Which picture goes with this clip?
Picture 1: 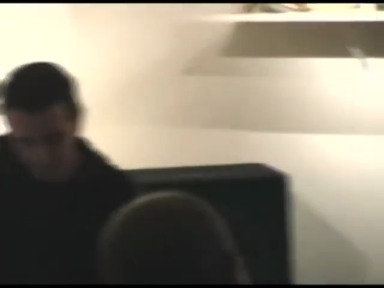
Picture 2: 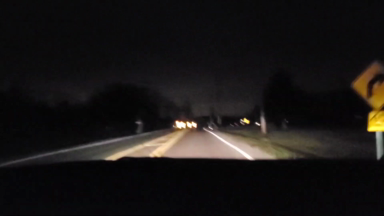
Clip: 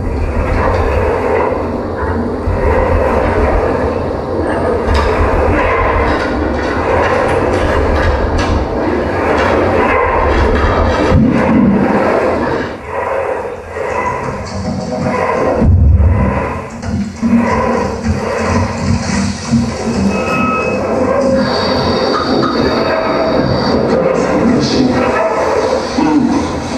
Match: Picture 1